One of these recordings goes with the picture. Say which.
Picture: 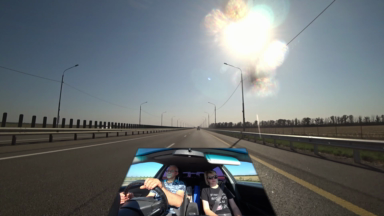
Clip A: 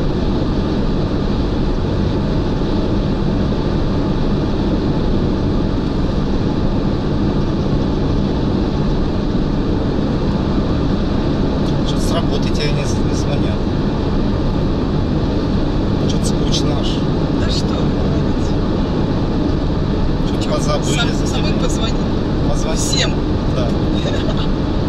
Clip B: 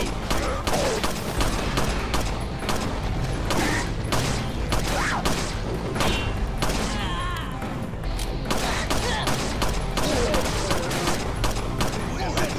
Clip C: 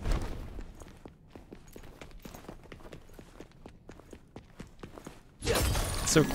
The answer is A